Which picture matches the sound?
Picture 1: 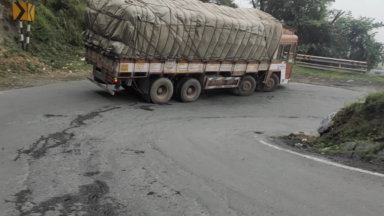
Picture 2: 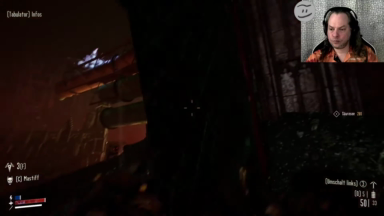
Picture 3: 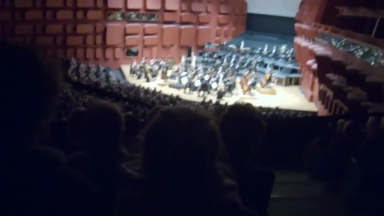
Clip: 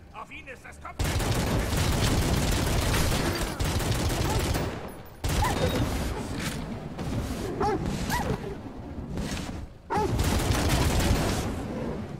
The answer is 2